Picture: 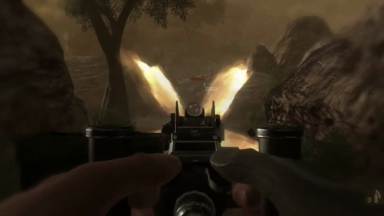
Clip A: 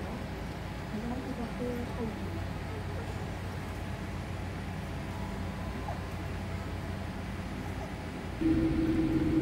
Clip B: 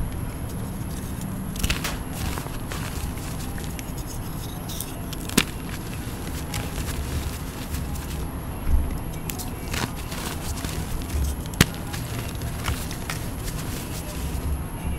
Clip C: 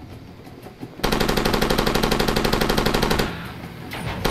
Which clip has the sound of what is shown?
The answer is C